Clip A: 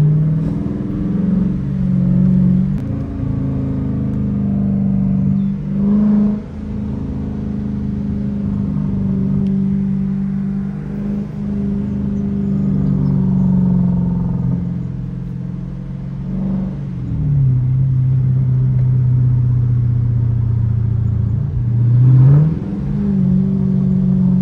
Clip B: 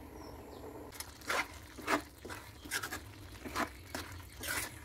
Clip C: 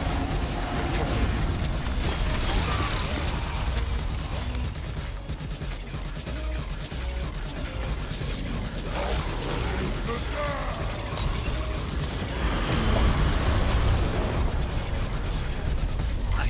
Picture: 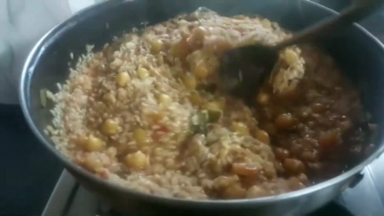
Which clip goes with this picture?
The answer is B